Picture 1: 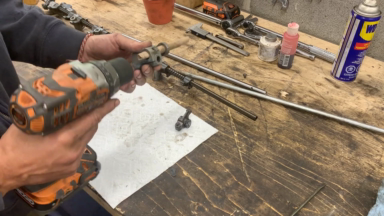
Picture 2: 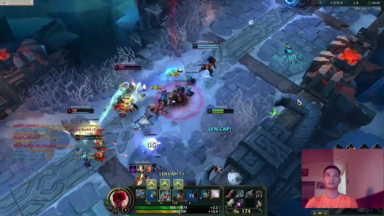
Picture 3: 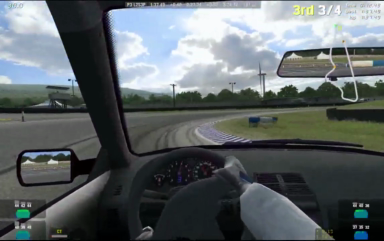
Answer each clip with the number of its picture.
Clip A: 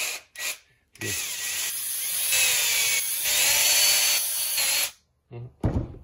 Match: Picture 1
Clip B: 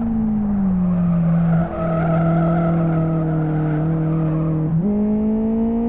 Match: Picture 3